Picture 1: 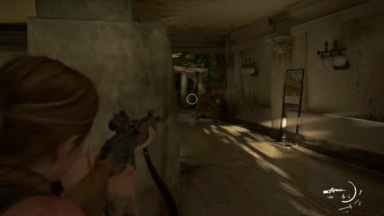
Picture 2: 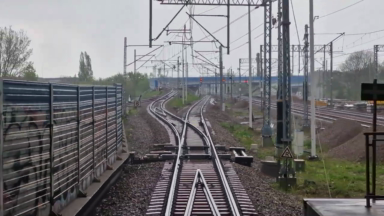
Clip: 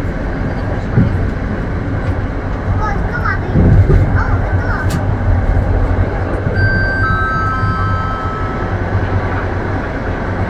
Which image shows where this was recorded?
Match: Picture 2